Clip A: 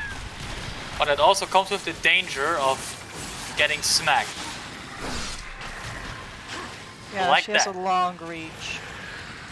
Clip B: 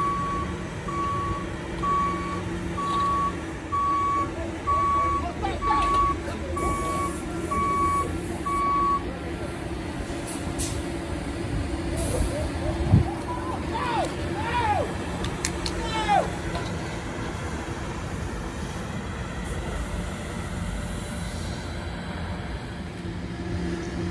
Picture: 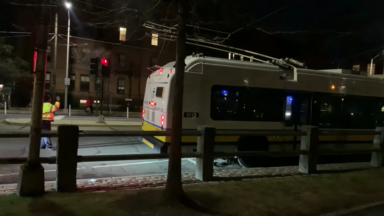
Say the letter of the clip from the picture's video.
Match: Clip B